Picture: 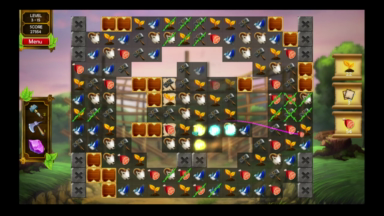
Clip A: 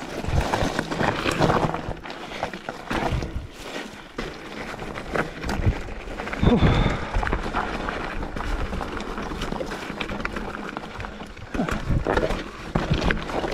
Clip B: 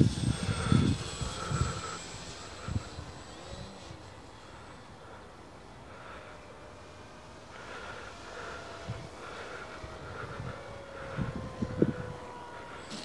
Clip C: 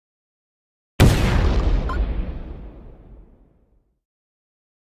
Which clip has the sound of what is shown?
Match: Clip C